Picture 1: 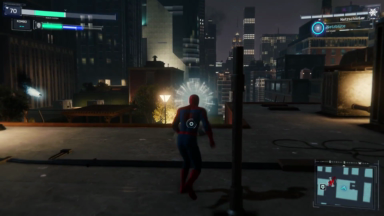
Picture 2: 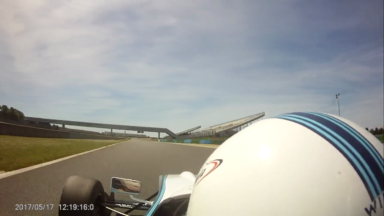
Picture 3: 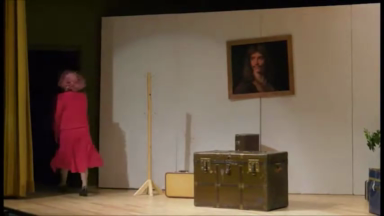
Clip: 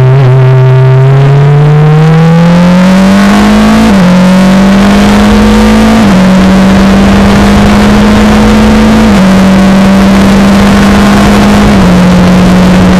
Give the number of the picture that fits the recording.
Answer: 2